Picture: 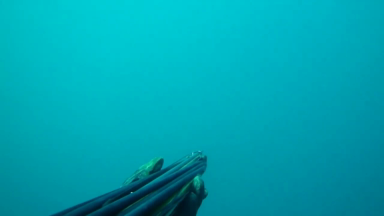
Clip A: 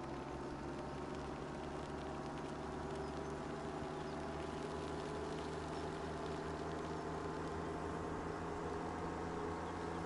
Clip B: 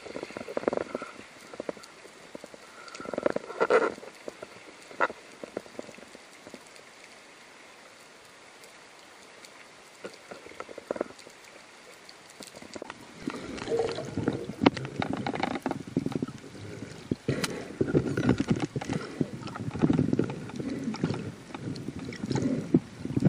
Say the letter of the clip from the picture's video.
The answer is B